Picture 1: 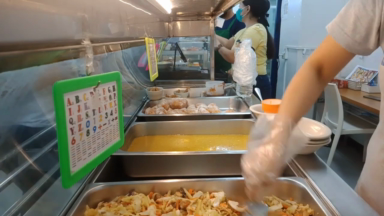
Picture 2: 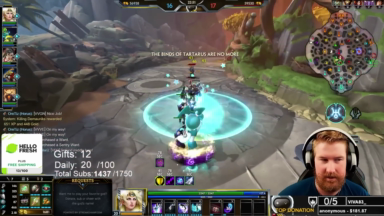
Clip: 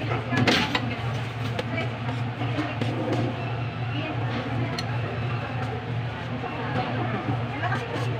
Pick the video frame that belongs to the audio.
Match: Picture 1